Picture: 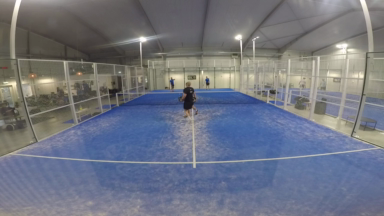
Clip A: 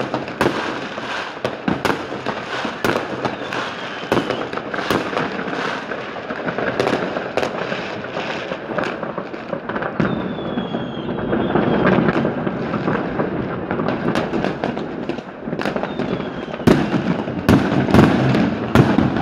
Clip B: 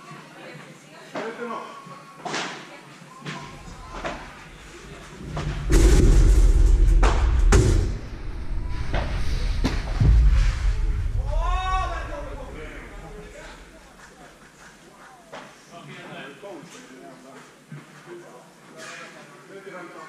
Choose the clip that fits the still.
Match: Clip B